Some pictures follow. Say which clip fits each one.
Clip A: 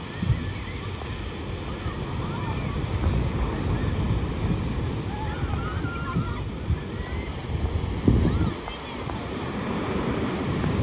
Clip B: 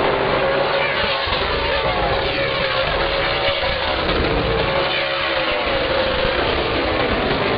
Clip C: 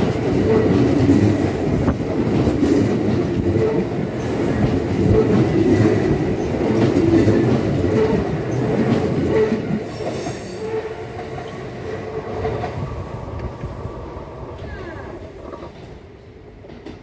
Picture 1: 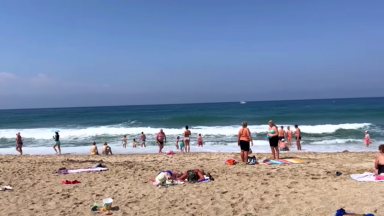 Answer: A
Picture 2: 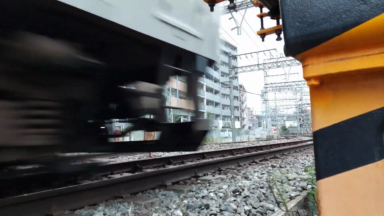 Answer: C